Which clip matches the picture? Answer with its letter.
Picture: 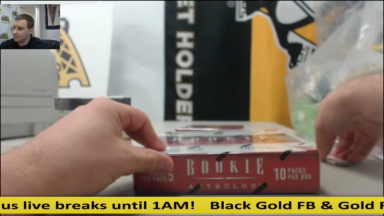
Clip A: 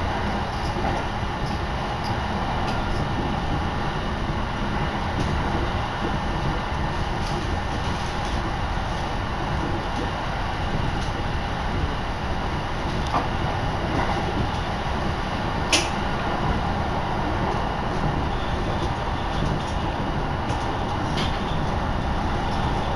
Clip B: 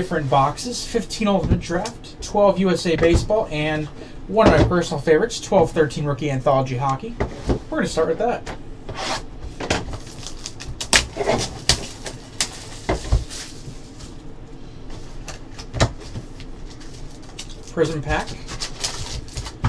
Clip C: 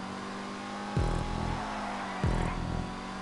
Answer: B